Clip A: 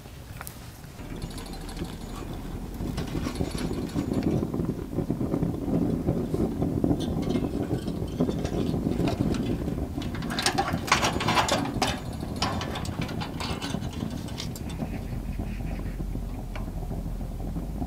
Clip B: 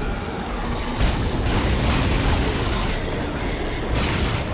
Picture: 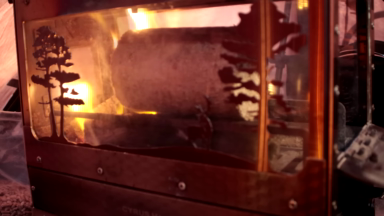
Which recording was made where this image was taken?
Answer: A